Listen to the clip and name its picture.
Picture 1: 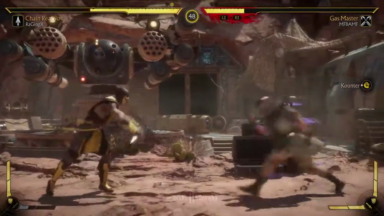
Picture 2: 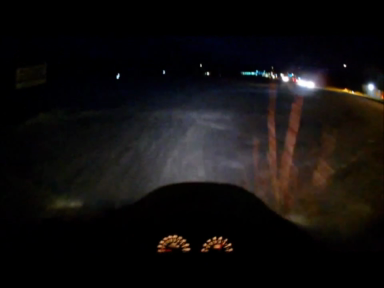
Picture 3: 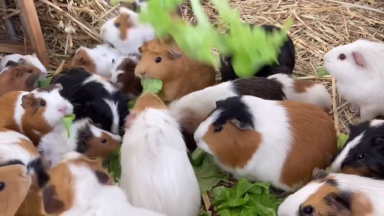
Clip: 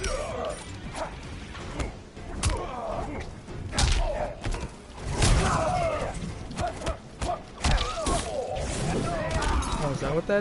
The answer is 1